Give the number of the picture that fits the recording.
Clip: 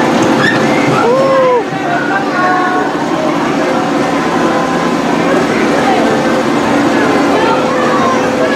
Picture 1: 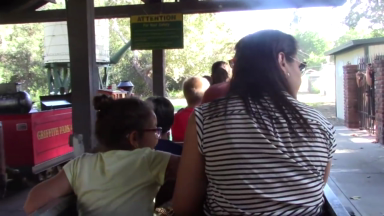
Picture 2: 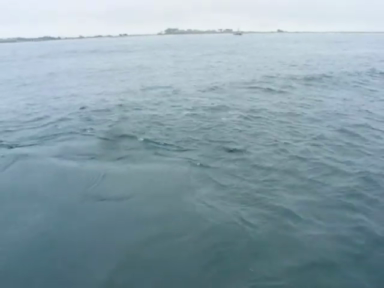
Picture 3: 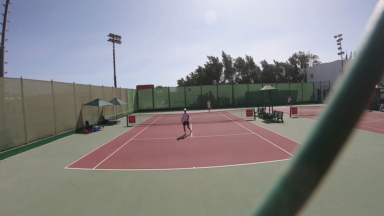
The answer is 1